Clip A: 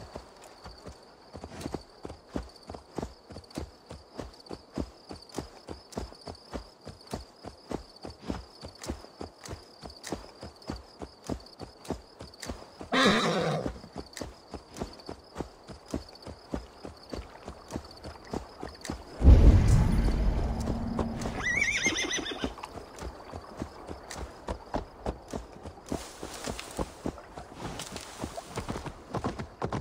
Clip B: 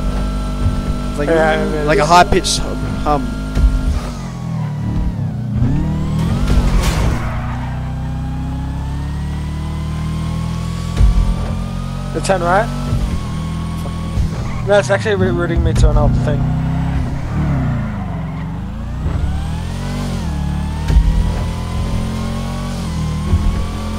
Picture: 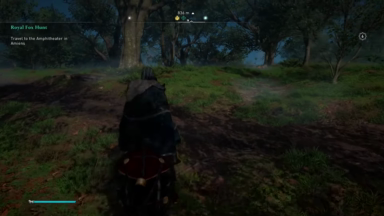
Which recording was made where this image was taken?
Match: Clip A